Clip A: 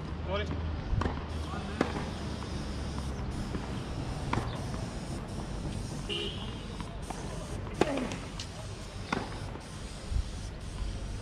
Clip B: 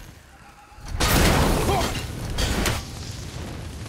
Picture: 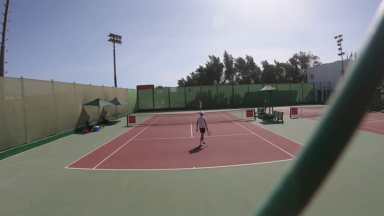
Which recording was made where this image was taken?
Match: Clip A